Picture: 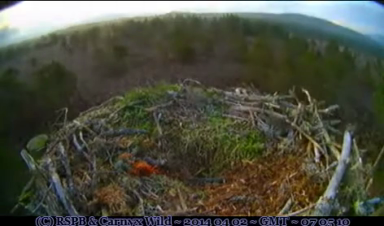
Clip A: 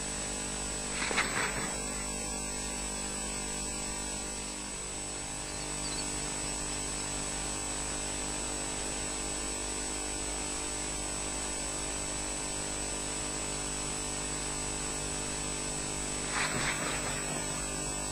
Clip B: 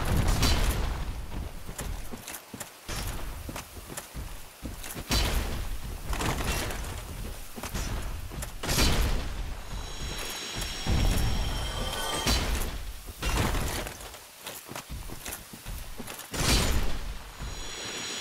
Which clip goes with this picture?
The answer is A